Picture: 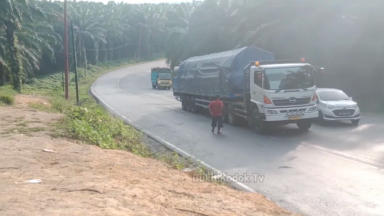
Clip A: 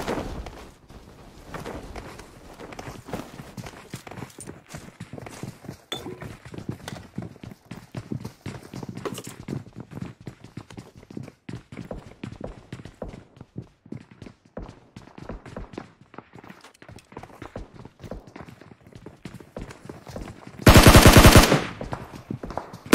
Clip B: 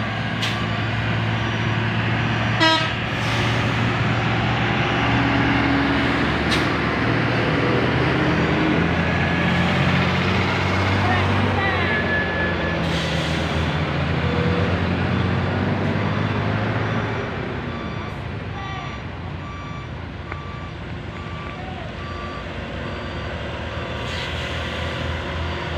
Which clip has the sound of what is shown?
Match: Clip B